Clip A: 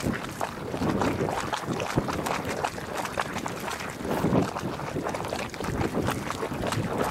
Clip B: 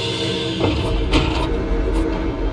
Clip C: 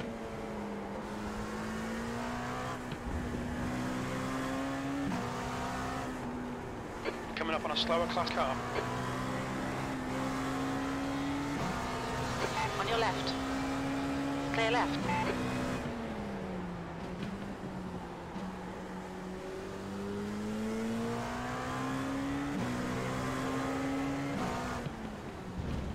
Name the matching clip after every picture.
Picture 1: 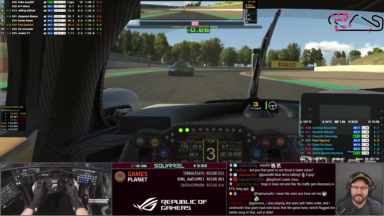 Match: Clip C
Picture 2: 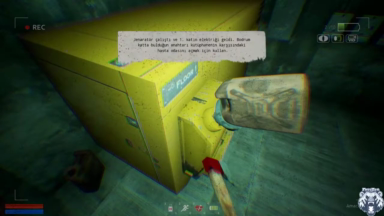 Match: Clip B